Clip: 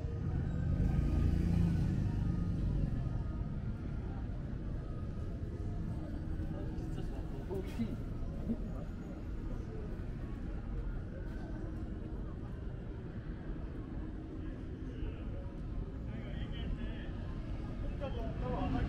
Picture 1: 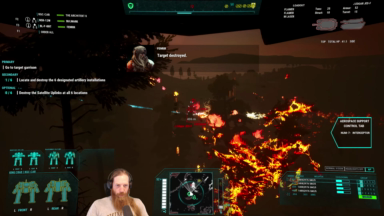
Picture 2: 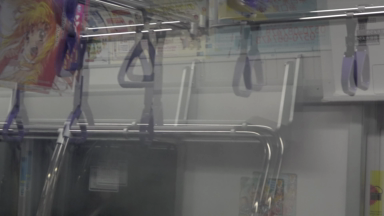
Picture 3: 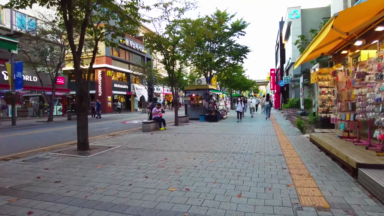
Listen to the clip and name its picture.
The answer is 3